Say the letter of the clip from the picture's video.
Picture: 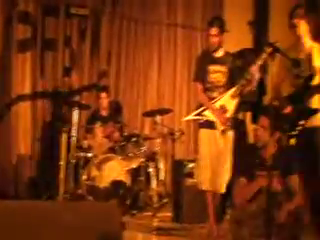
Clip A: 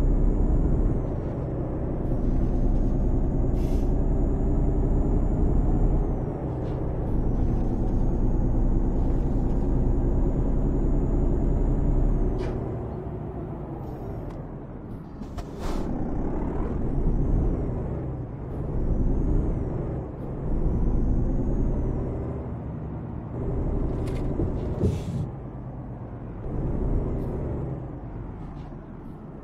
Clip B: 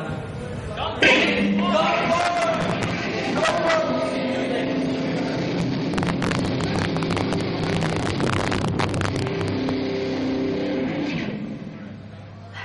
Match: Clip B